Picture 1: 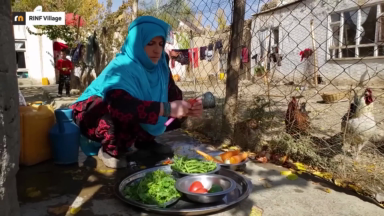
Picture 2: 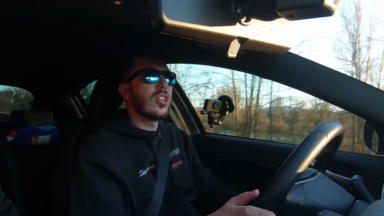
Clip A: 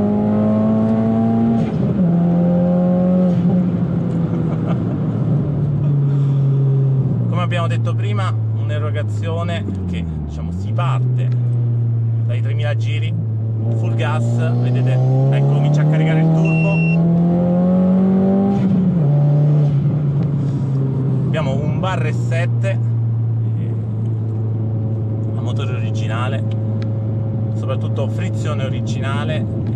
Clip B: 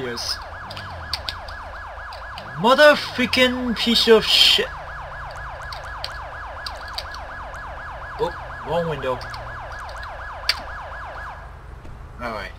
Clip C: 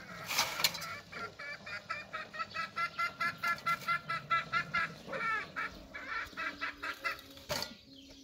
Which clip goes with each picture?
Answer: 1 C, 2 A